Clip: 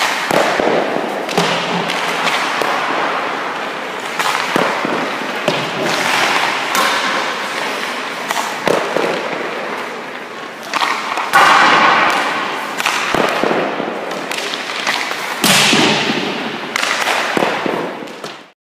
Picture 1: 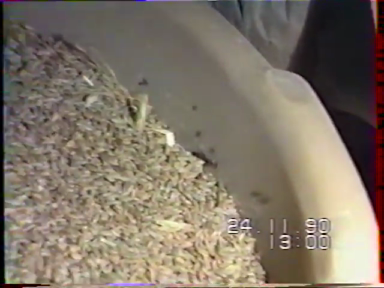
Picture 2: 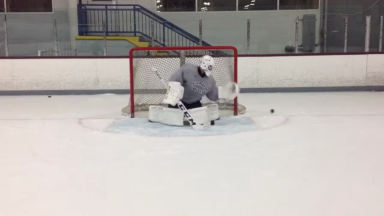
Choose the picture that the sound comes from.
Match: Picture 2